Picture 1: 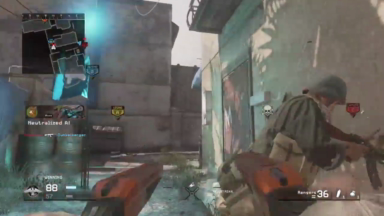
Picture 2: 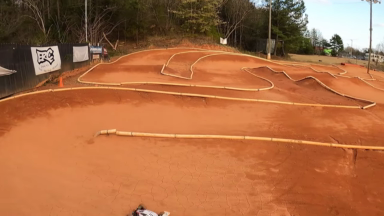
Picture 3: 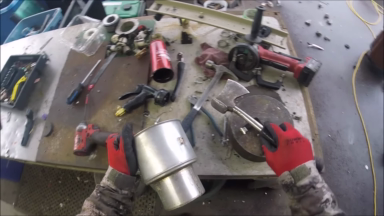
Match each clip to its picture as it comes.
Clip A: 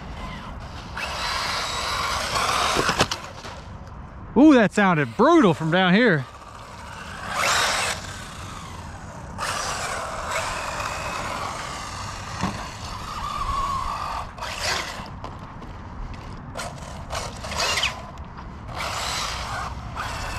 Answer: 2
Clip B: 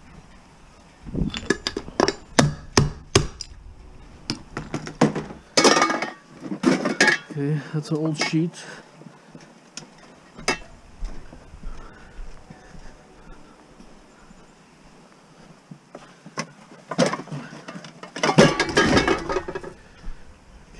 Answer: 3